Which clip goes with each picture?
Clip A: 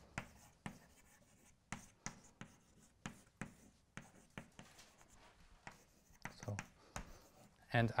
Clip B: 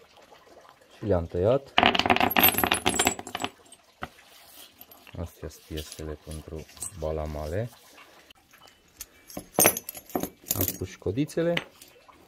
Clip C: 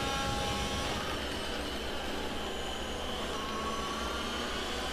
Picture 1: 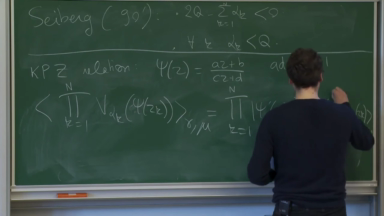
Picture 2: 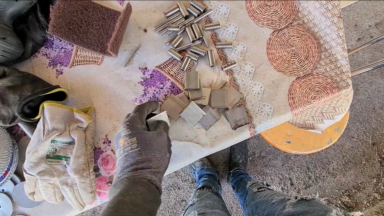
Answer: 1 A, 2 B